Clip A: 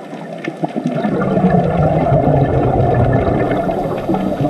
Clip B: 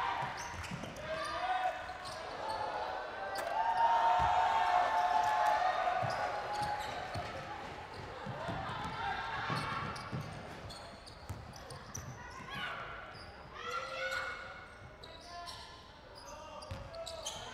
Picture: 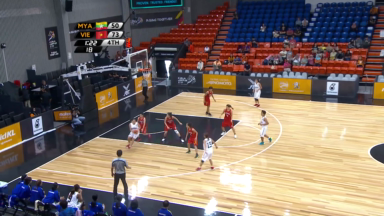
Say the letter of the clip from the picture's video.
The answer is B